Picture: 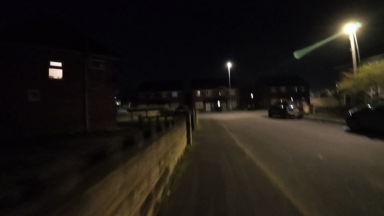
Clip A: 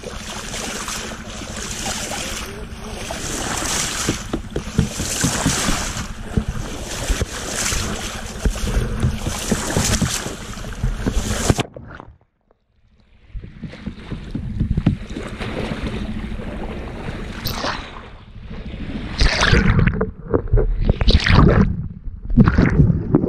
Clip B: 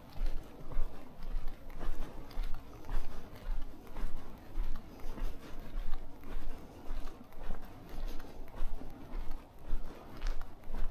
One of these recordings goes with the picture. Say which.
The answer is B